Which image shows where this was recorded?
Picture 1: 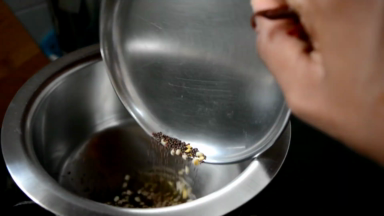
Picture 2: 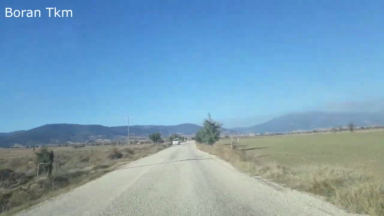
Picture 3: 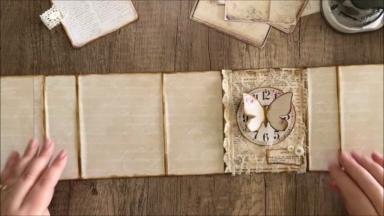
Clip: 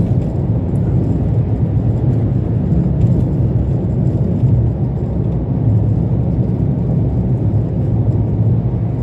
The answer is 2